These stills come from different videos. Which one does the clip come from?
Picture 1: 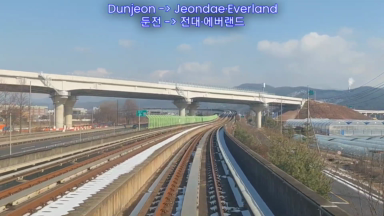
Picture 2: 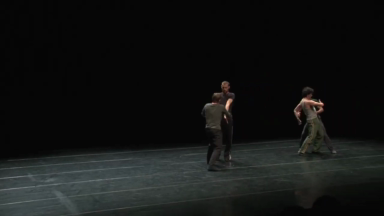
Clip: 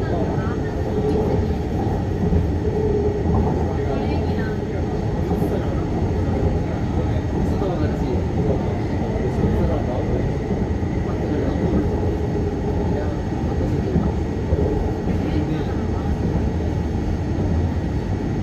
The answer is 1